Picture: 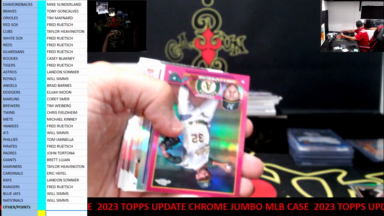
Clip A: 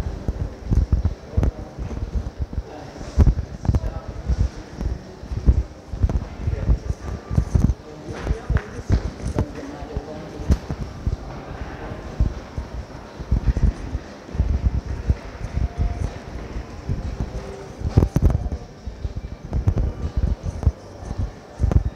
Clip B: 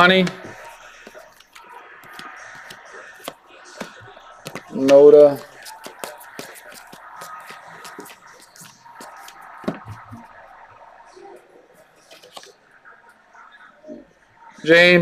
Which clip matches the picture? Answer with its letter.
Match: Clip B